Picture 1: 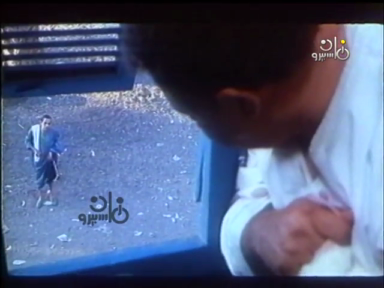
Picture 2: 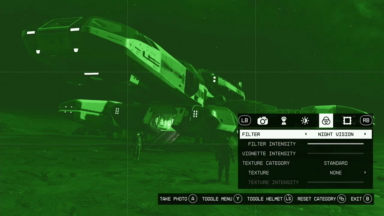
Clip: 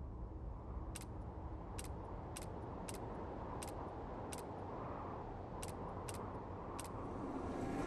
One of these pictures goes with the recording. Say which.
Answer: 2